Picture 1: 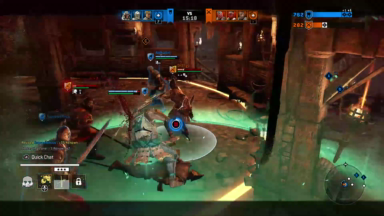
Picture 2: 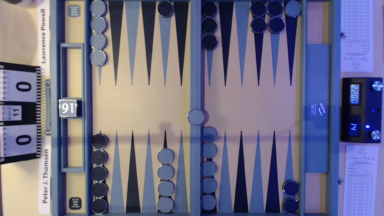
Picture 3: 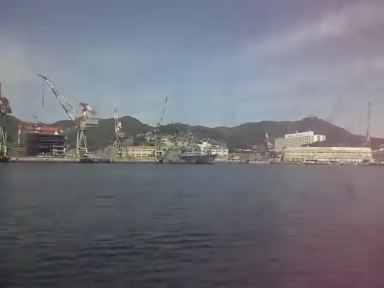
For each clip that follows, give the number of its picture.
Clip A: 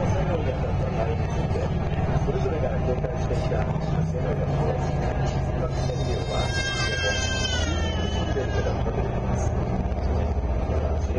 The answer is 3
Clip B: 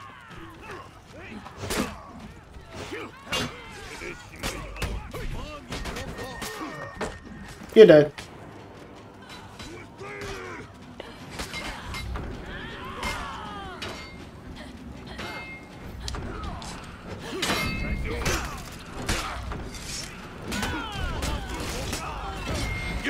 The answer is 1